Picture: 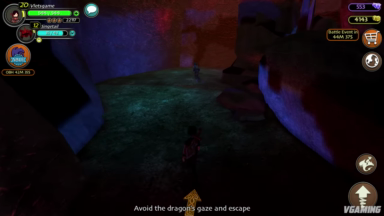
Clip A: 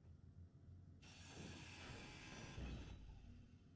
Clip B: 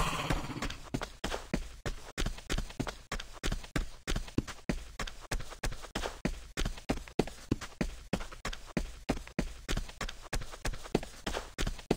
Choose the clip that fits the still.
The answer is B